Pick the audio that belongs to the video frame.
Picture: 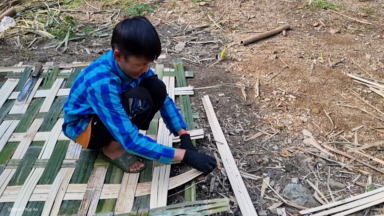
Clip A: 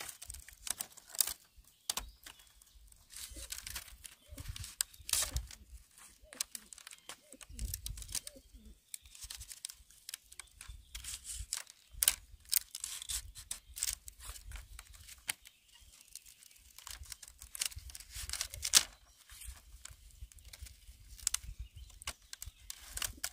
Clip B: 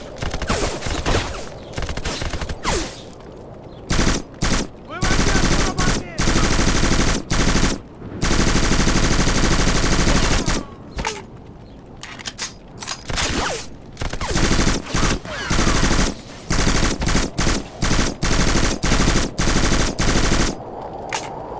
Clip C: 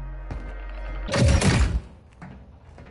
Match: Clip A